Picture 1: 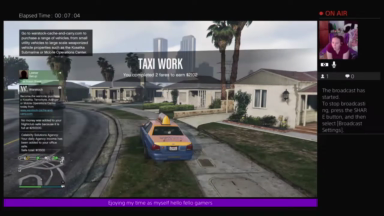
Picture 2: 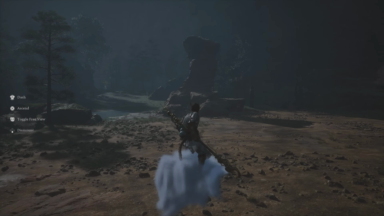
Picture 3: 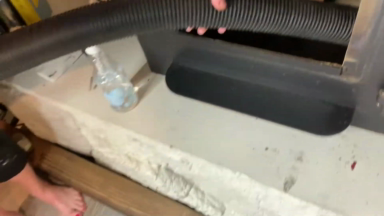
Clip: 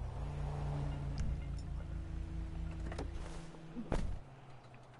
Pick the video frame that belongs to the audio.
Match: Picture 1